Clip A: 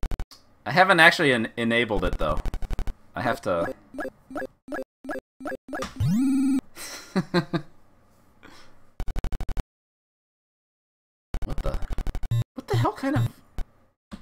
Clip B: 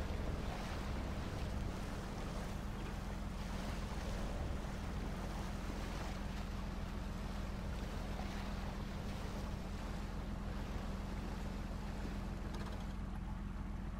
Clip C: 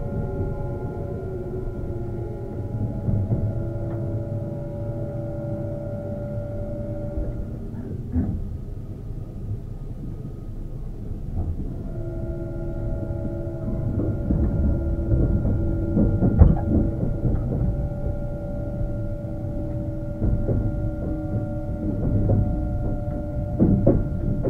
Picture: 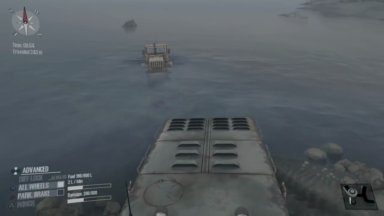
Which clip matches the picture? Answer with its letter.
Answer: B